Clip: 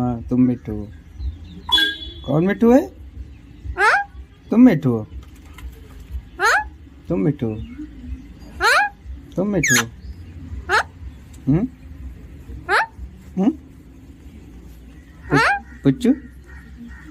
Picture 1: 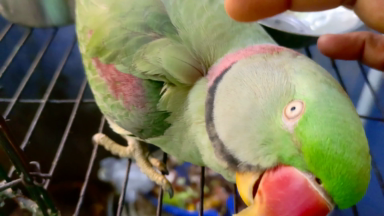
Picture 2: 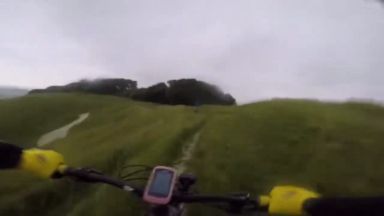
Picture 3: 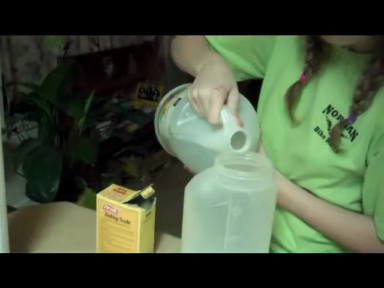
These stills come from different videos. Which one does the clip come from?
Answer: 1